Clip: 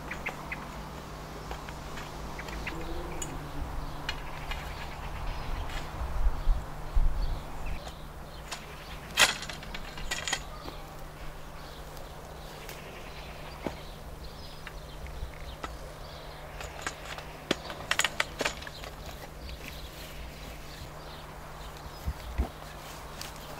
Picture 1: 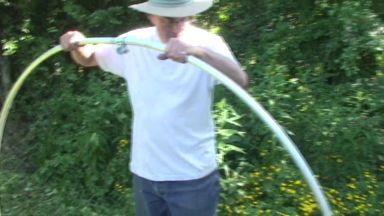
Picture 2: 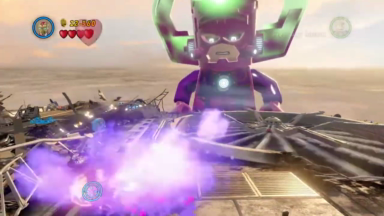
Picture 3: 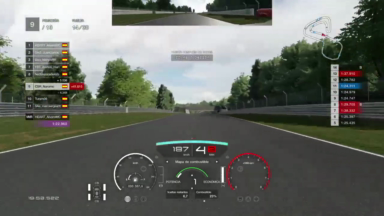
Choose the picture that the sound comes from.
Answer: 1